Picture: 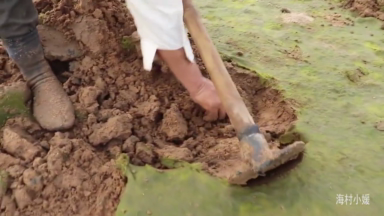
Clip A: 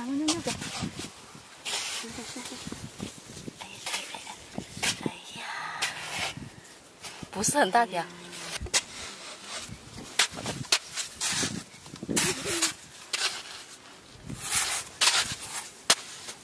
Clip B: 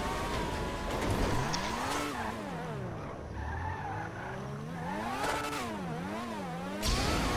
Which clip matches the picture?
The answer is A